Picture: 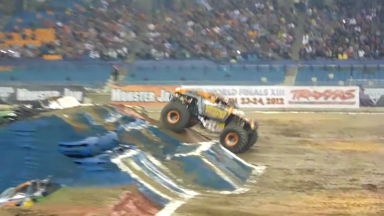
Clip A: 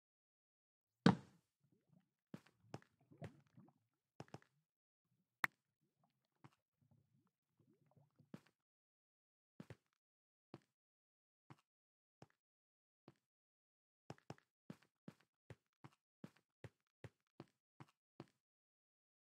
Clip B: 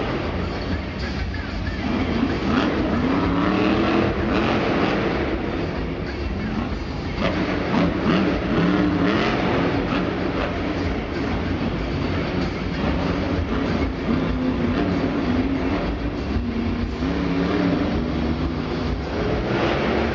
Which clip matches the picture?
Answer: B